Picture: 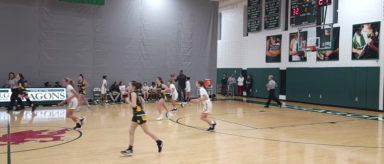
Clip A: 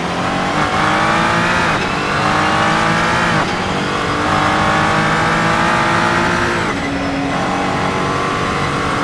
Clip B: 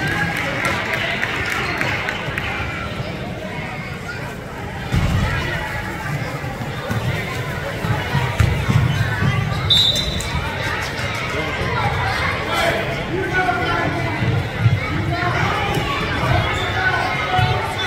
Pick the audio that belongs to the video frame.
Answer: B